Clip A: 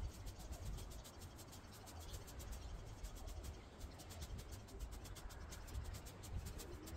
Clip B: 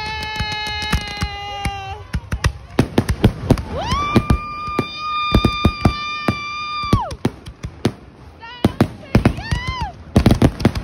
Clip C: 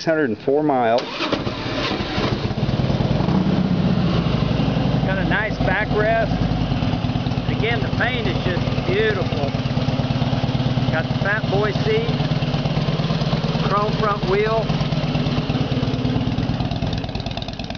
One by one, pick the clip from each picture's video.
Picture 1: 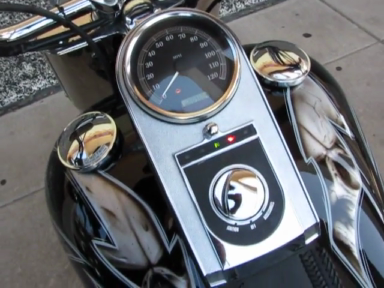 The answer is C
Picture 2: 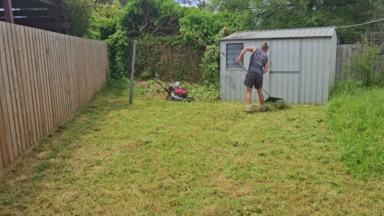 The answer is A